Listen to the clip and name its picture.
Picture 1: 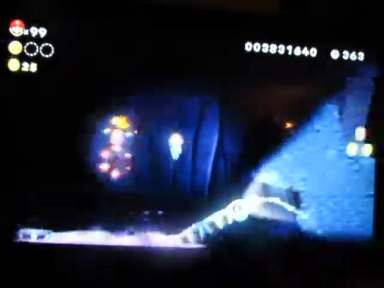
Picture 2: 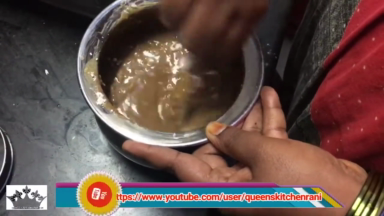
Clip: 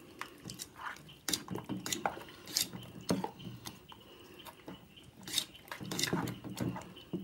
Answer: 2